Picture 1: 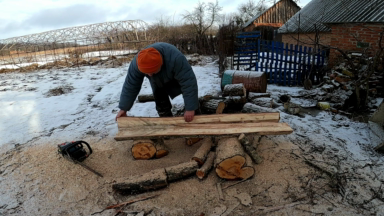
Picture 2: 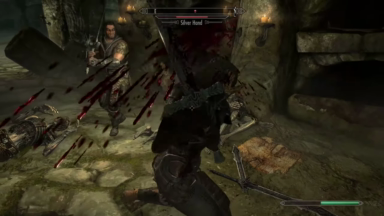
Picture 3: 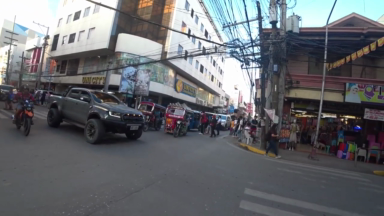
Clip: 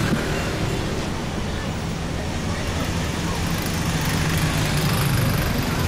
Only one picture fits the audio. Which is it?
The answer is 3